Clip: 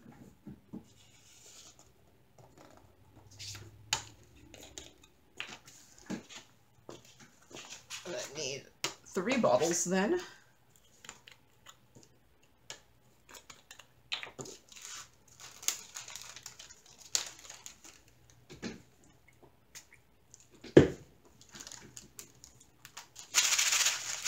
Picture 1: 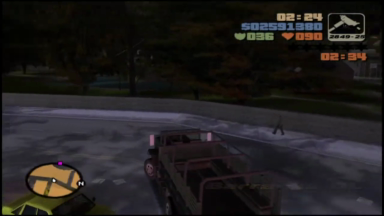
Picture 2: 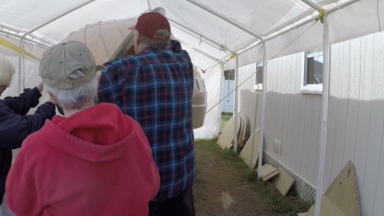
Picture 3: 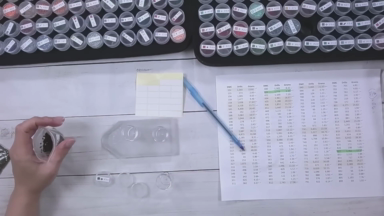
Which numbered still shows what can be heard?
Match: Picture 3